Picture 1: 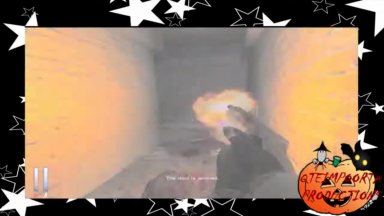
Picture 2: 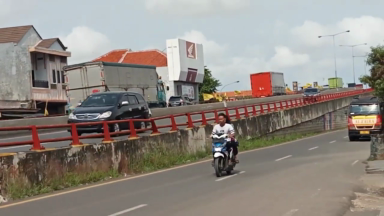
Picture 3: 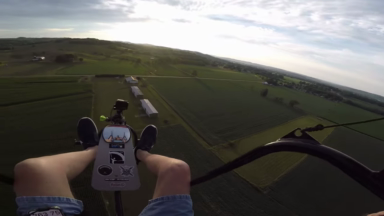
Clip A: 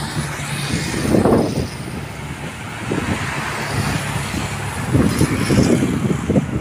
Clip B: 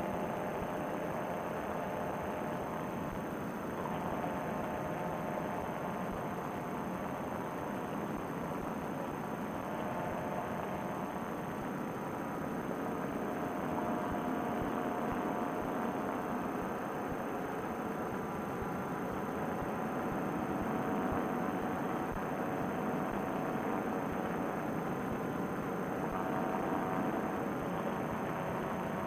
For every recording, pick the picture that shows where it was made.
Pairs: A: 2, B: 3